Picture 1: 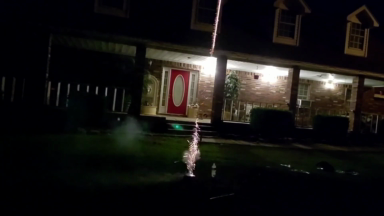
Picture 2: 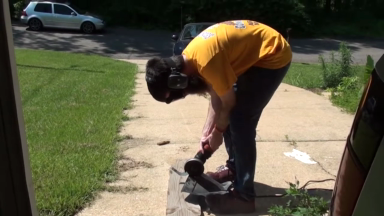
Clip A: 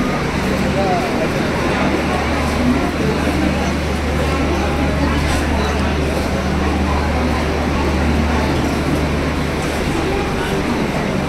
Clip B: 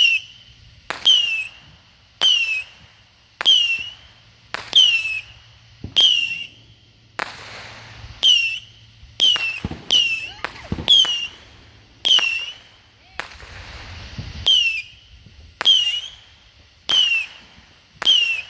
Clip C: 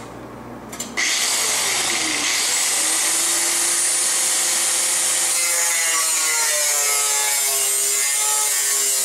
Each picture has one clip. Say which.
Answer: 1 B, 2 C